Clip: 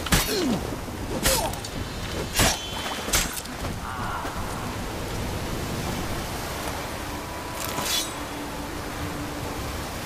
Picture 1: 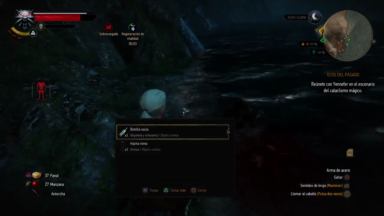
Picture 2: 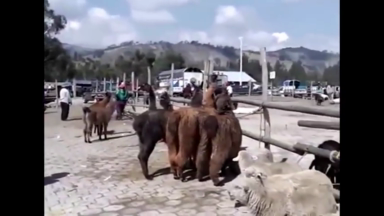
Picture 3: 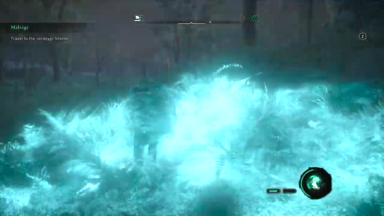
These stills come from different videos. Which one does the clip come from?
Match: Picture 1